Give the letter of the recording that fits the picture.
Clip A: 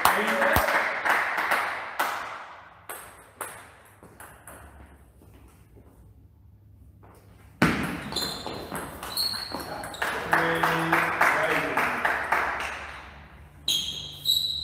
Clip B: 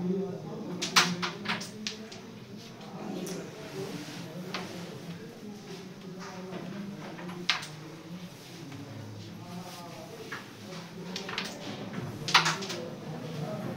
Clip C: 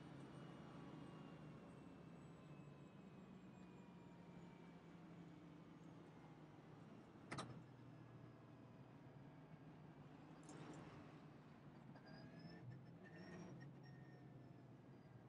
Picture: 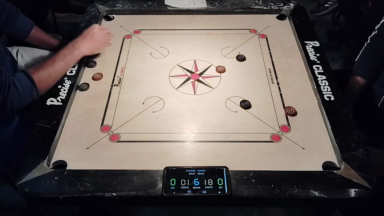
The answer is B